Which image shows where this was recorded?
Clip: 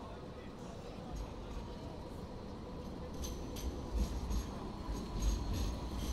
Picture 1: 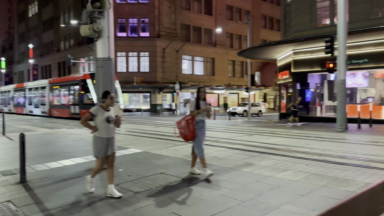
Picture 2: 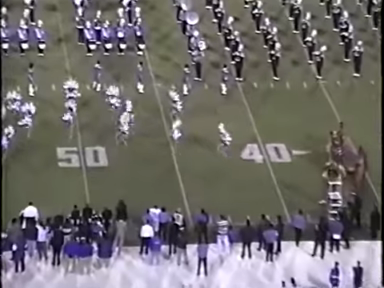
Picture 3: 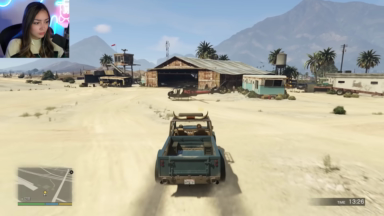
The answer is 1